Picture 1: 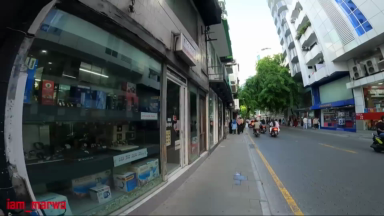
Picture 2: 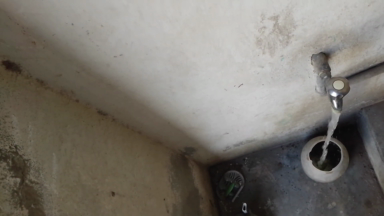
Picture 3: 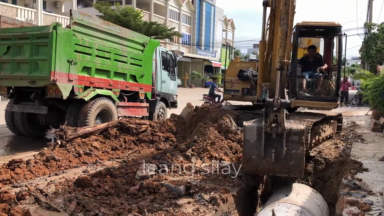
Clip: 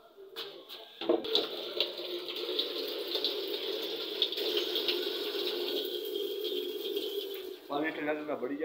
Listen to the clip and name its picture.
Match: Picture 2